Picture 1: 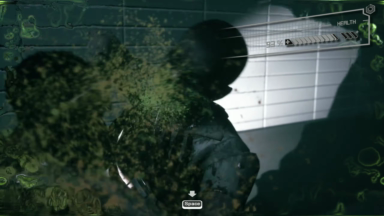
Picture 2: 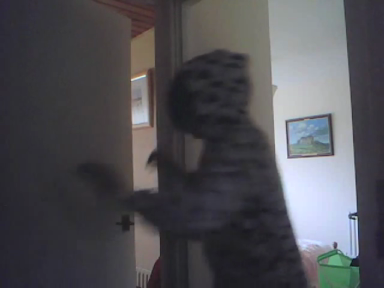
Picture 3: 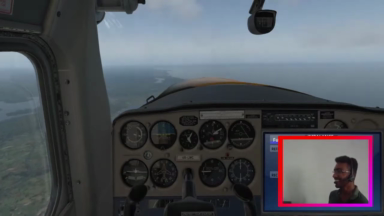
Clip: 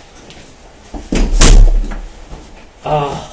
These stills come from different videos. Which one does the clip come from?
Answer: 2